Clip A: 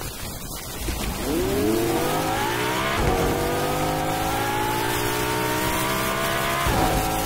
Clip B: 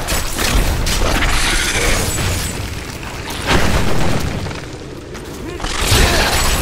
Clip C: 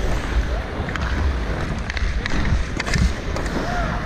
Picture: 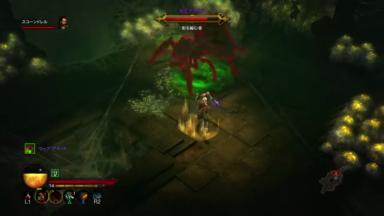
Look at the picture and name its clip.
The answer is B